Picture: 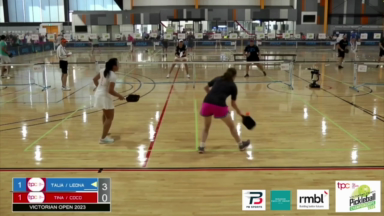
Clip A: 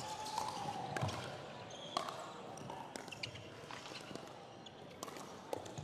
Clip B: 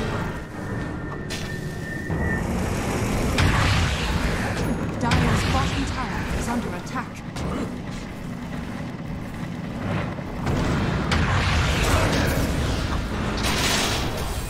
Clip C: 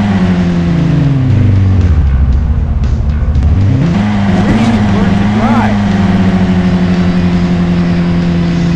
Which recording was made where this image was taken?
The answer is A